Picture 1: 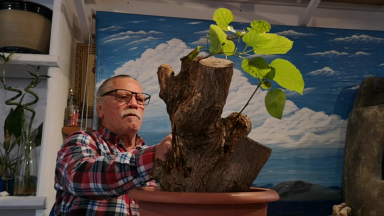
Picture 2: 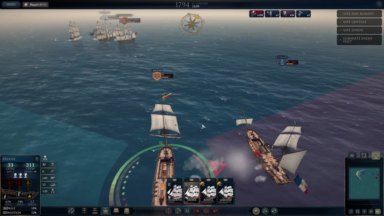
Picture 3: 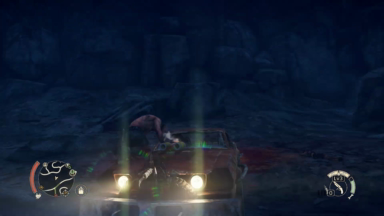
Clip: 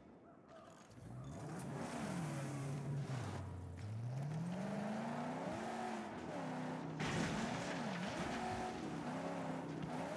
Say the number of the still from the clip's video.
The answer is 3